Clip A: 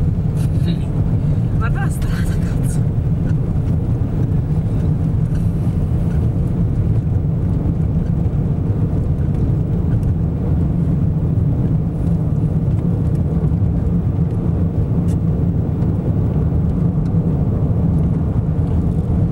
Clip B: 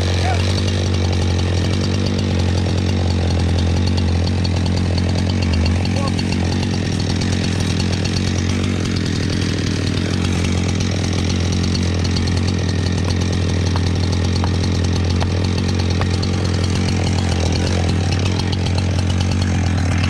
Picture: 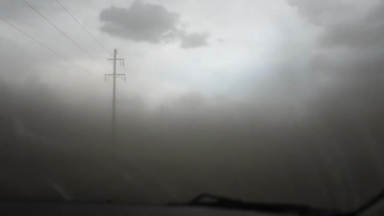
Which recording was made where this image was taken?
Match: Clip A